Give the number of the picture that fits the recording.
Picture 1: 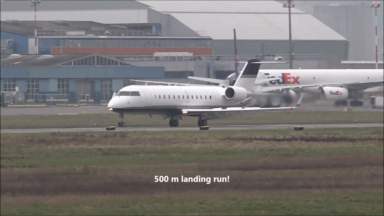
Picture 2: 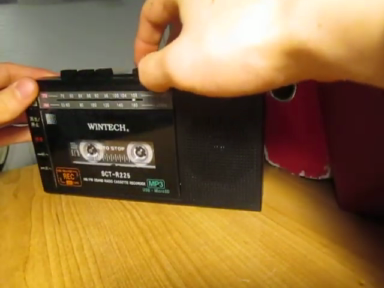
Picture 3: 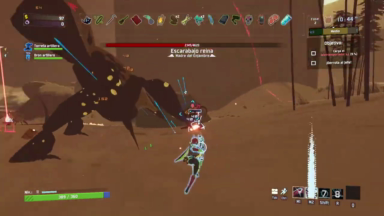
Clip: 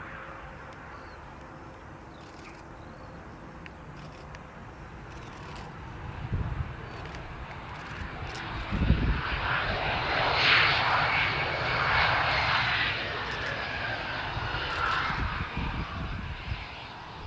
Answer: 1